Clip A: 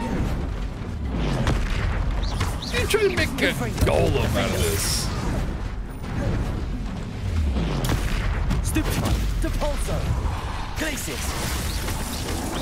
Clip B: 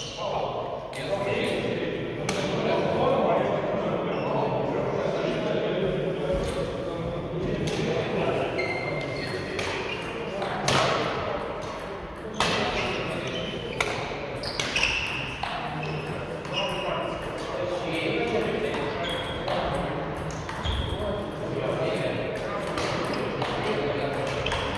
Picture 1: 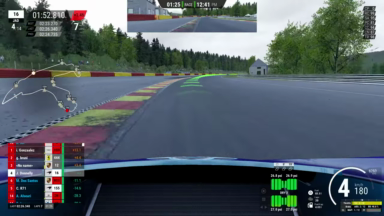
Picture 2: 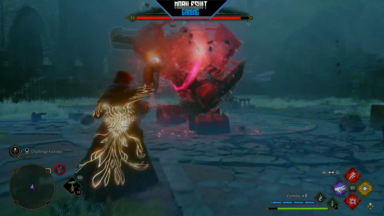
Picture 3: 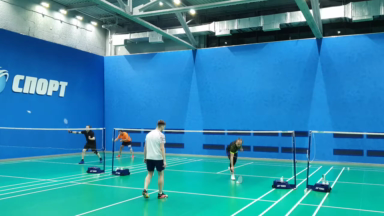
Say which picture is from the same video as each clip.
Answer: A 2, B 3